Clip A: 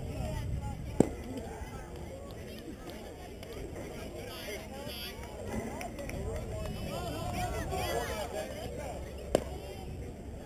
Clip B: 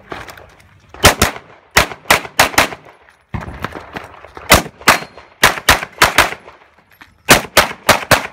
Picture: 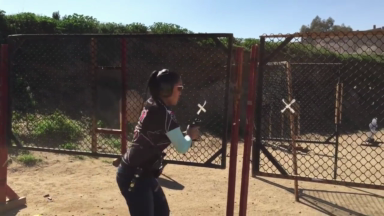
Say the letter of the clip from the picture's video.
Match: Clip B